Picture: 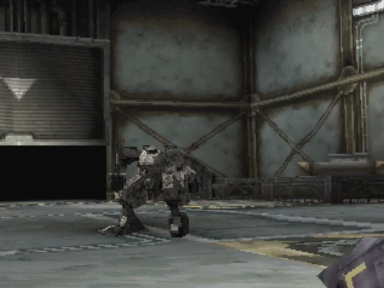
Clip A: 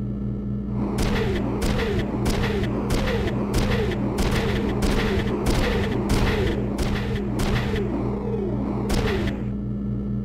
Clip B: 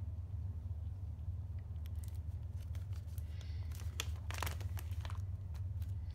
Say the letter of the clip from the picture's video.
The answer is A